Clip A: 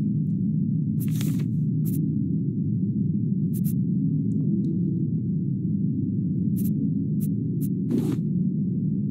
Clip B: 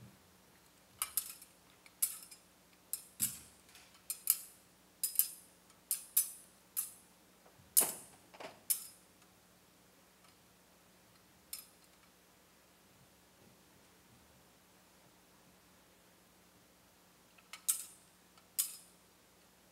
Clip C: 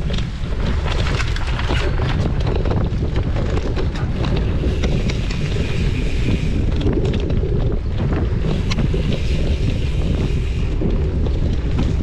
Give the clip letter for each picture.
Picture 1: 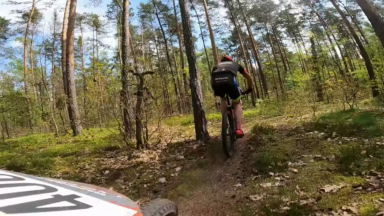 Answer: C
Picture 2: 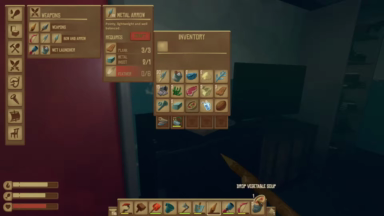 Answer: A